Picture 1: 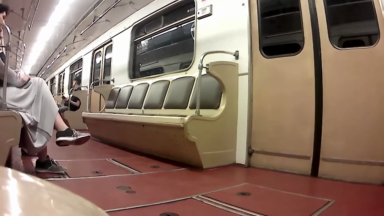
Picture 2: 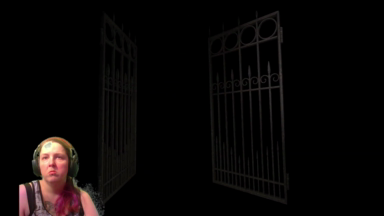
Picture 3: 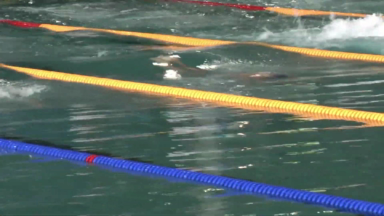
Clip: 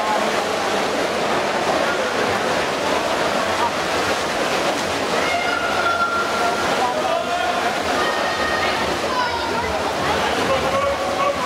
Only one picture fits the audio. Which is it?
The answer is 3